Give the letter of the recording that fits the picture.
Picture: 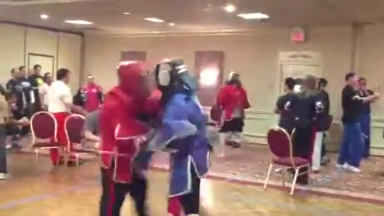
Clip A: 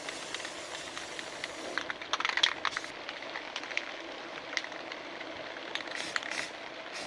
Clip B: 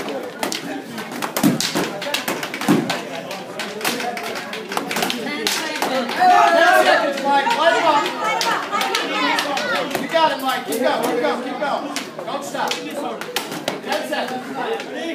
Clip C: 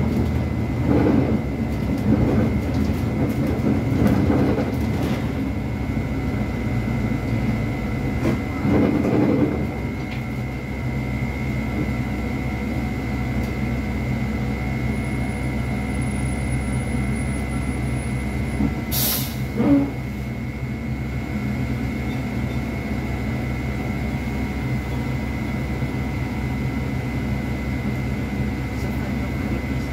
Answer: B